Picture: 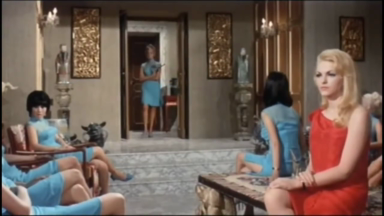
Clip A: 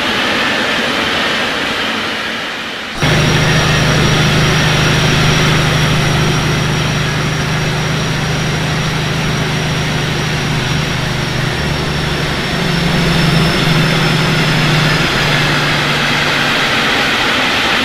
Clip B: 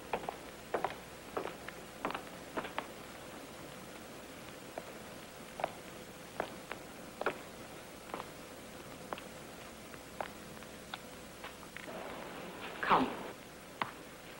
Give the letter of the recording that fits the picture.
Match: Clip B